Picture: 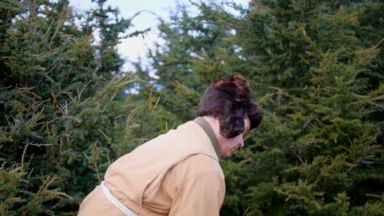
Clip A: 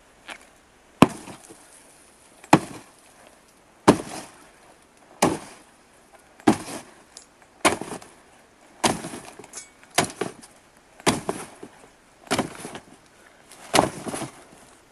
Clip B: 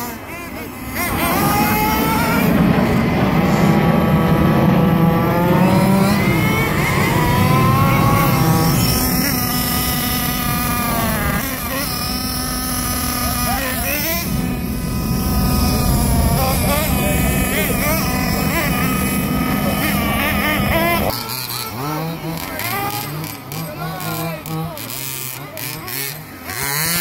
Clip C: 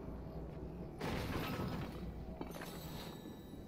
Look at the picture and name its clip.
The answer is A